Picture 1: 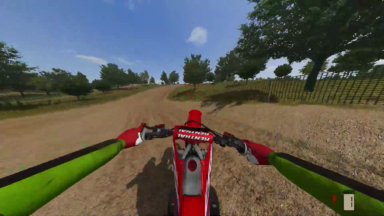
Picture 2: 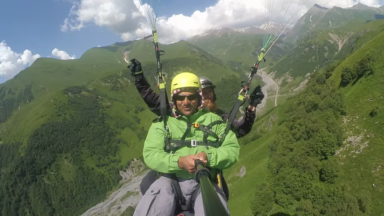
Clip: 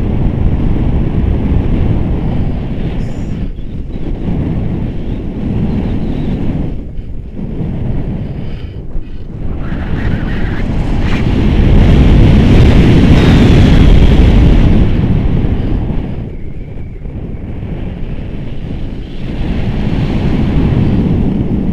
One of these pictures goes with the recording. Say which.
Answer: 2